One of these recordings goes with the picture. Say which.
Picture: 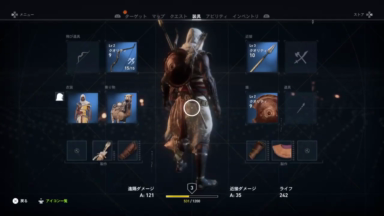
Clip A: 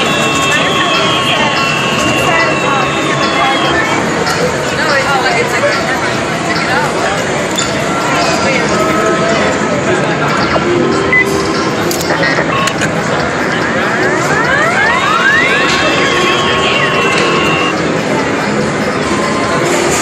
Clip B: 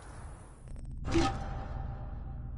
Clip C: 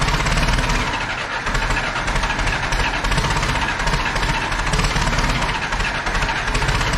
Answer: B